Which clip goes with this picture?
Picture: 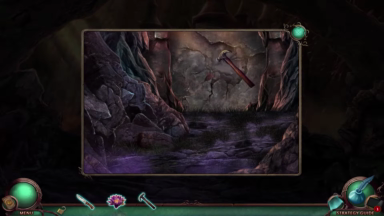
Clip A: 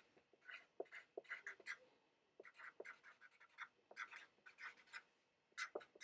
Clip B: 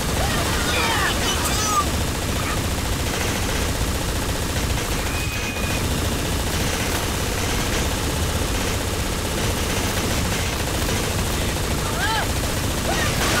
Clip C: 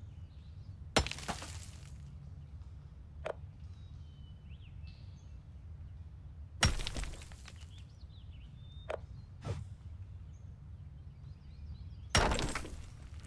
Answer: C